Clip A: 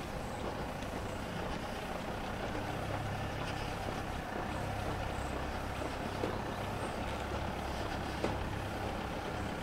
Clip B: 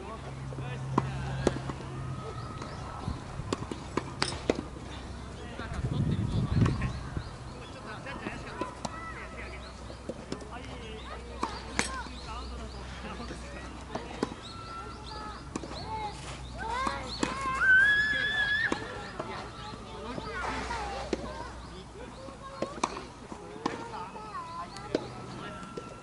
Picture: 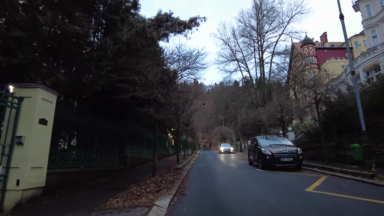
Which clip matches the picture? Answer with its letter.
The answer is A